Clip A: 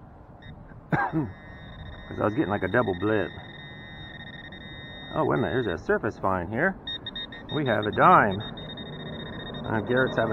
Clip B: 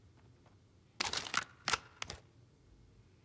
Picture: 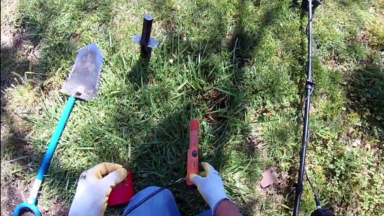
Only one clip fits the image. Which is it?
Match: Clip A